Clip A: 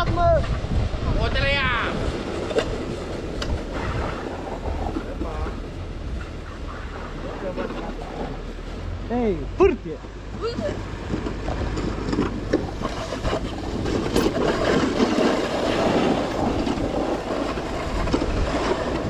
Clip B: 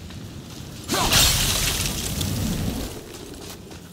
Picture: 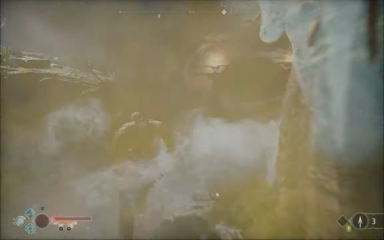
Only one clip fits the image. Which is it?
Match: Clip B